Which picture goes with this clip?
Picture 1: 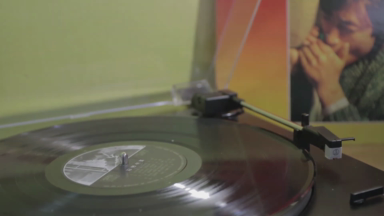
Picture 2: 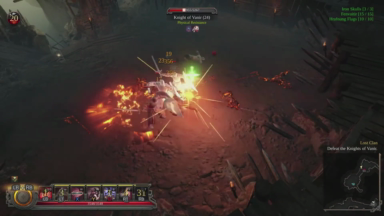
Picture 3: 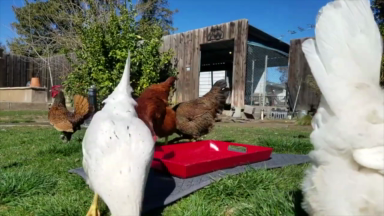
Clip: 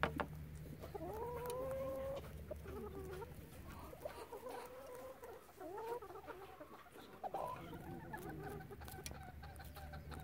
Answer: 3